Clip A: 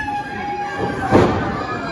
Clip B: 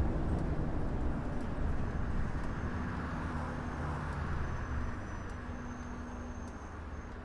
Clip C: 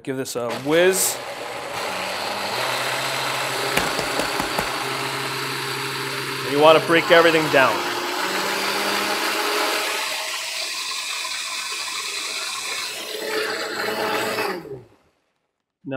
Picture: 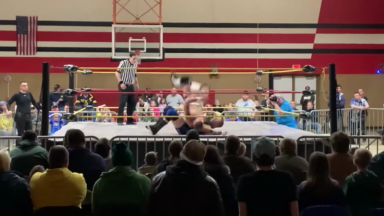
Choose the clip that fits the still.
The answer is A